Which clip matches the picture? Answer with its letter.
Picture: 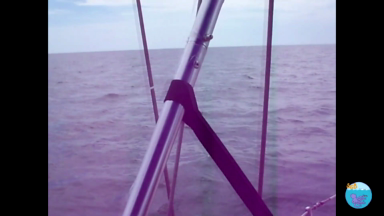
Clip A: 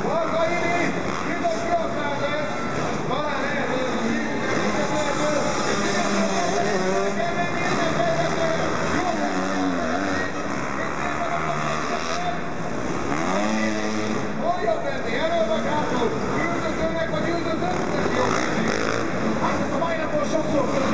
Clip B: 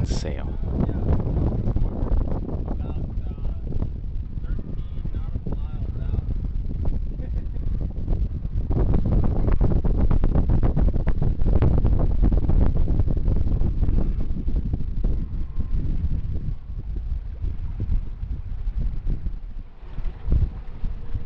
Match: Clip B